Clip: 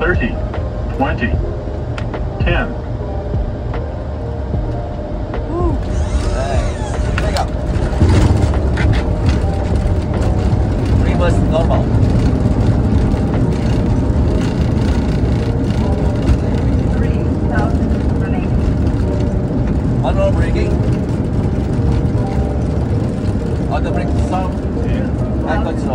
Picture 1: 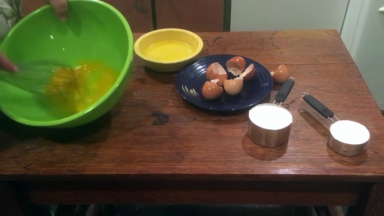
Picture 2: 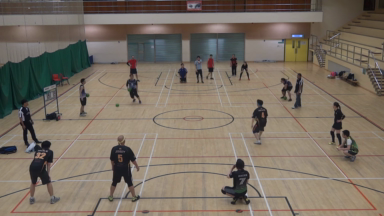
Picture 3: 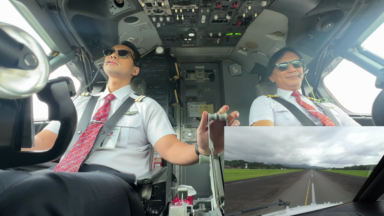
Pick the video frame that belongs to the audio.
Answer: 3